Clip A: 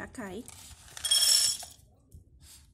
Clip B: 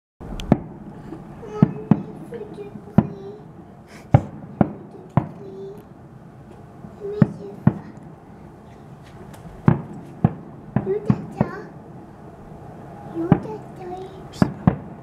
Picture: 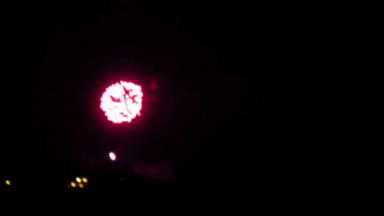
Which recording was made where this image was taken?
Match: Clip B